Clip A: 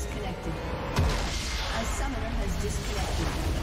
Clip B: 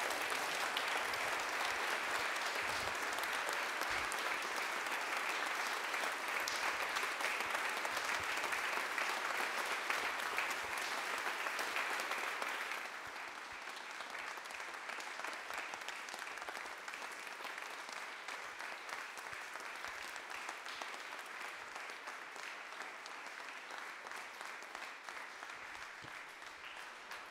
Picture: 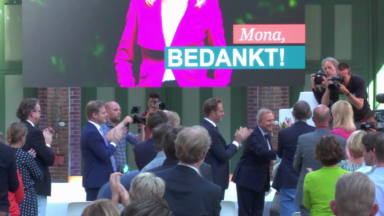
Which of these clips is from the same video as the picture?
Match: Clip B